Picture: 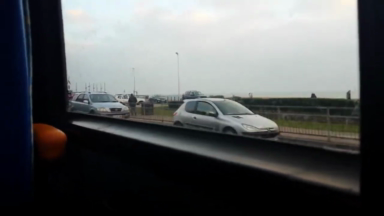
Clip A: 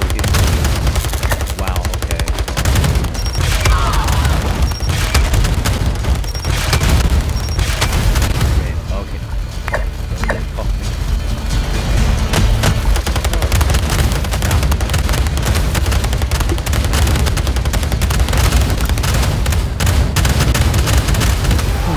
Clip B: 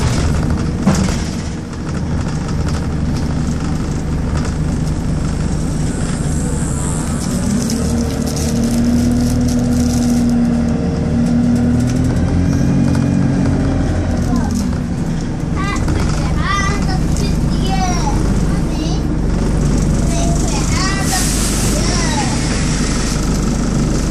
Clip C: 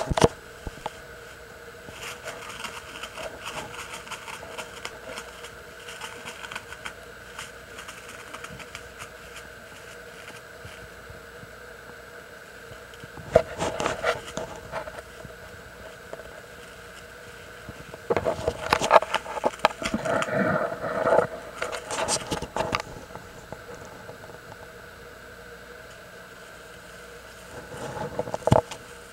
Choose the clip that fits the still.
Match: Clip B